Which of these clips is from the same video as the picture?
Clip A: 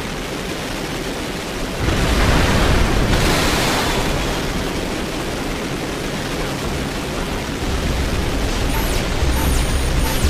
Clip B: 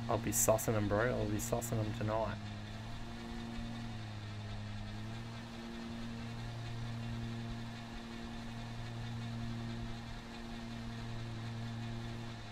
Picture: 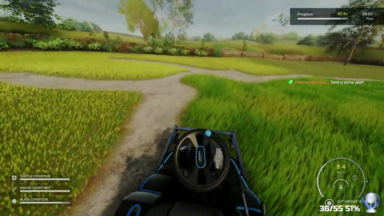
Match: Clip B